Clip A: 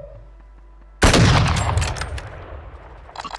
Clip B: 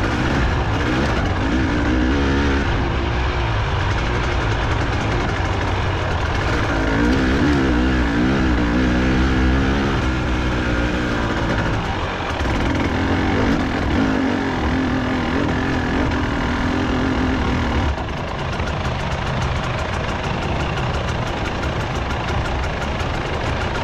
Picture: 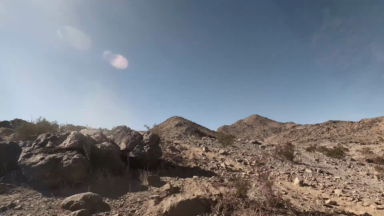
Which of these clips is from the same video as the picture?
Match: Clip B